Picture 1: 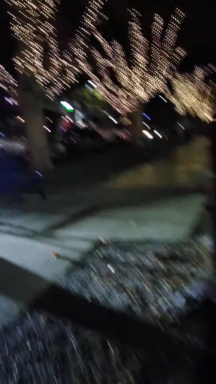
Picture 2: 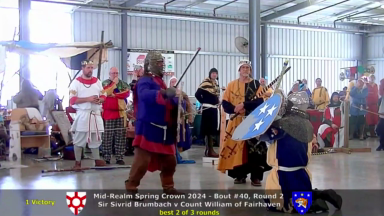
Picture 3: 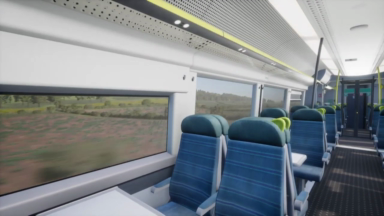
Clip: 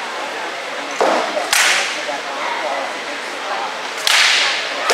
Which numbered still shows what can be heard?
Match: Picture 2